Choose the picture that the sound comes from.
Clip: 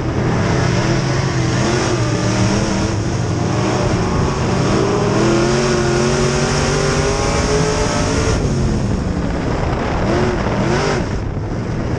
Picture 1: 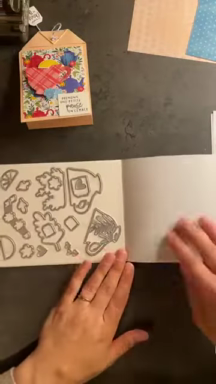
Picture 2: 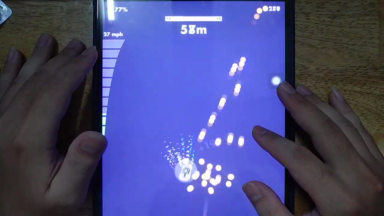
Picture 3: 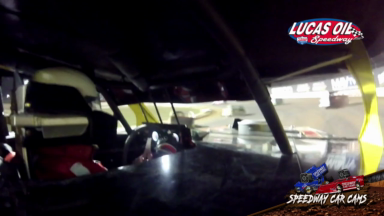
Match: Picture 3